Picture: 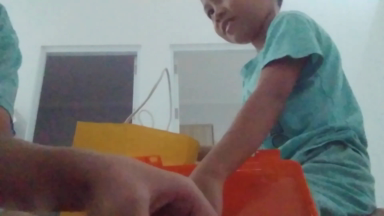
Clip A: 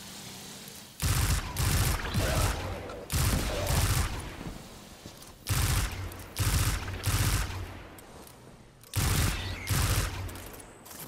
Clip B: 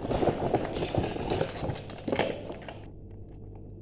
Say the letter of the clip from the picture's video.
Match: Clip B